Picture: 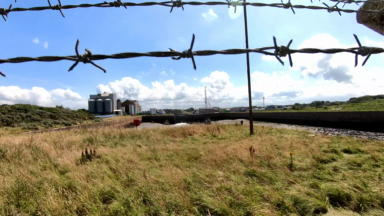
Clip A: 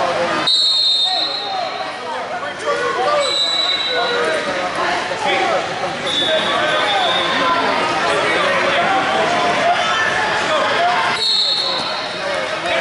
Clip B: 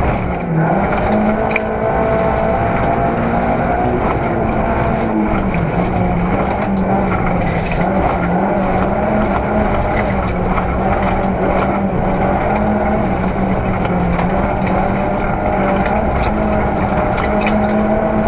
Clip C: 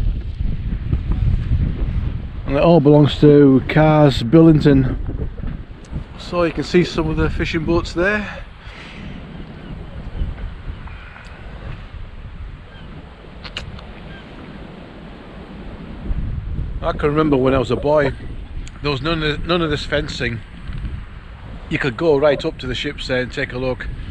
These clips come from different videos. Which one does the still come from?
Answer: C